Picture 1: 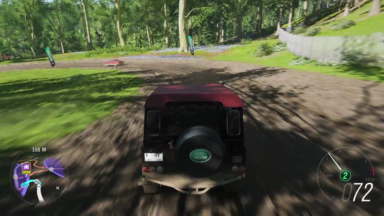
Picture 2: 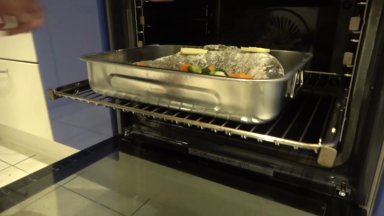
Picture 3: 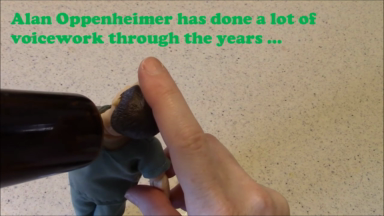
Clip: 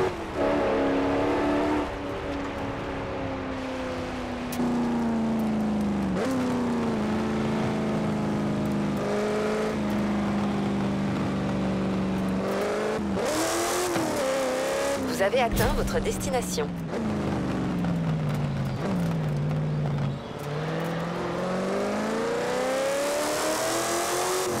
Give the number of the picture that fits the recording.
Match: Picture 1